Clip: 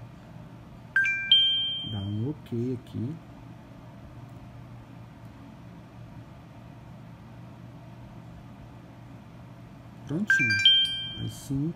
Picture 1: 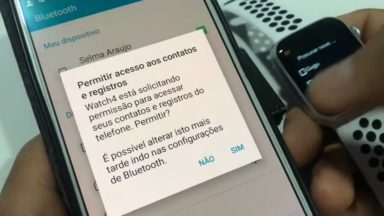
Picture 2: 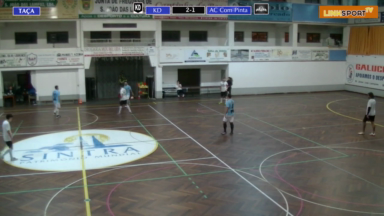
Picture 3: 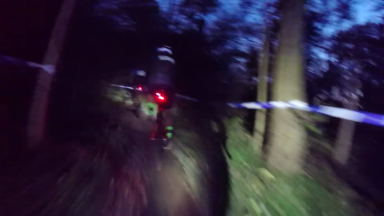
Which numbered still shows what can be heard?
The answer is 1